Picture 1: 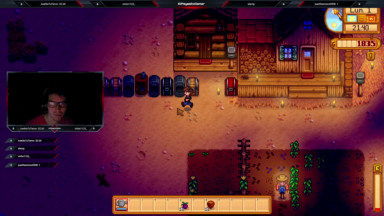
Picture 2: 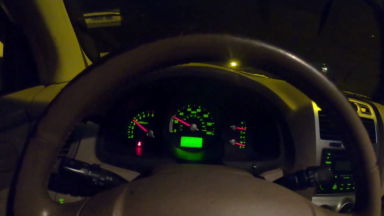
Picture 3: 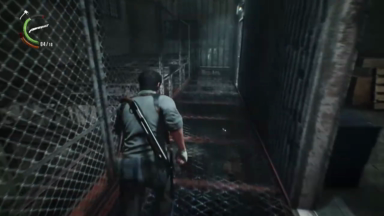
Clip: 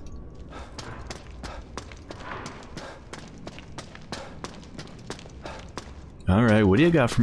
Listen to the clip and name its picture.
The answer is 3